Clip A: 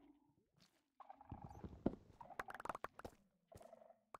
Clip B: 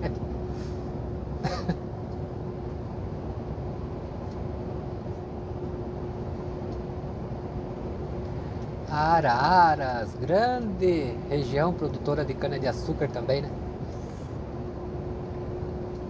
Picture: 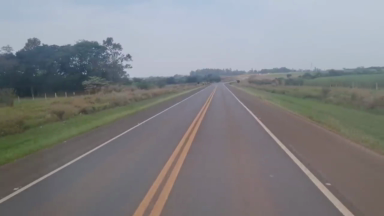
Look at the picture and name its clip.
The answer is B